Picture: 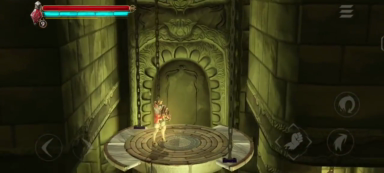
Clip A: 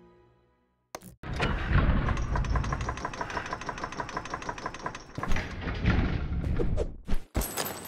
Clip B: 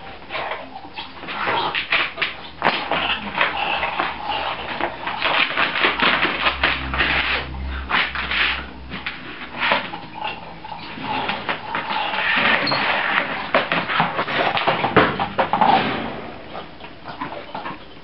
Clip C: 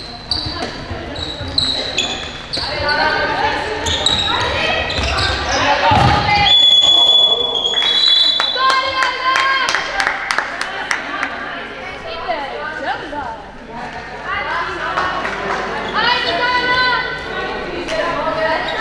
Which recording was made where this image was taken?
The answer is A